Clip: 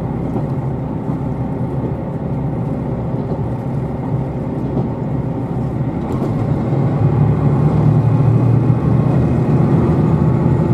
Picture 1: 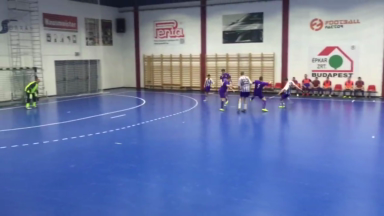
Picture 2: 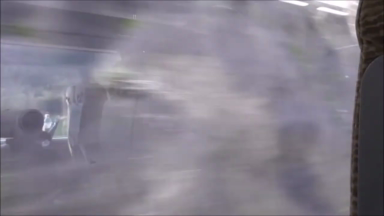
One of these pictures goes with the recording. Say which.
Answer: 2